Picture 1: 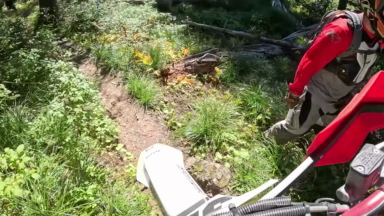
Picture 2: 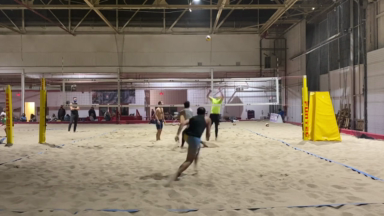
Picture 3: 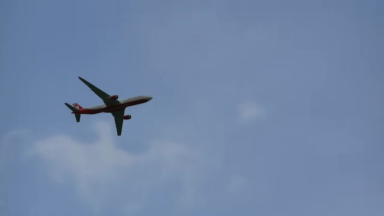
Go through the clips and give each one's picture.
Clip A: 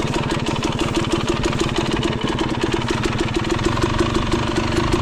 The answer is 1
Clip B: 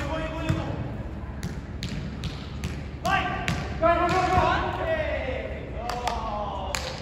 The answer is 2